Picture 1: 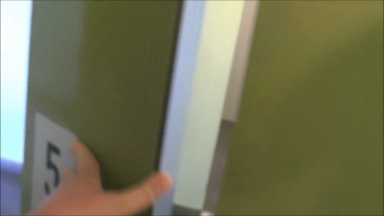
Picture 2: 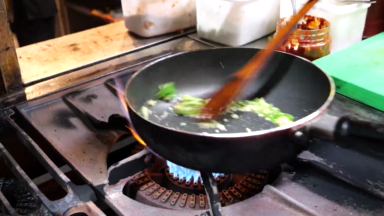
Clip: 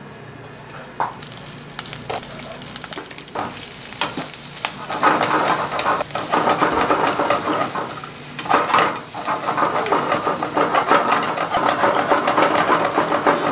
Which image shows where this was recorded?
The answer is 2